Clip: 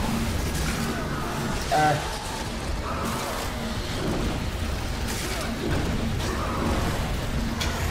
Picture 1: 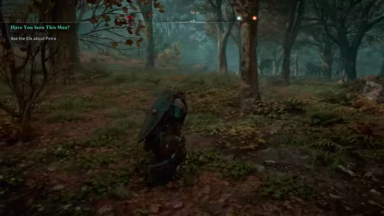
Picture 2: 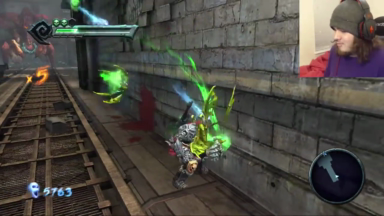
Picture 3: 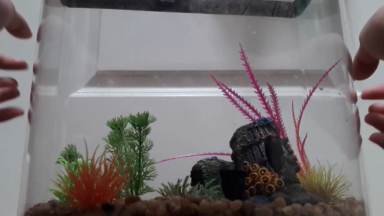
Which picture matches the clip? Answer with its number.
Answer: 2